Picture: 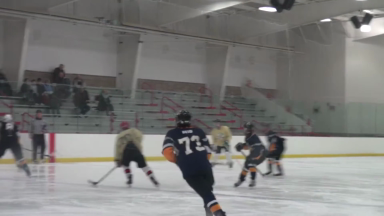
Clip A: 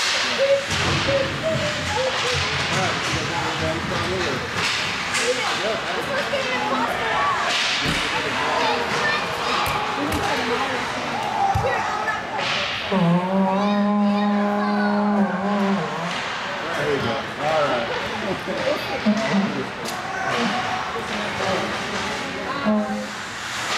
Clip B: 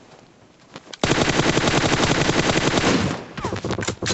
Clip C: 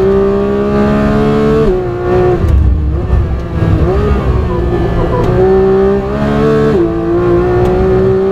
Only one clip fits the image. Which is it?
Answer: A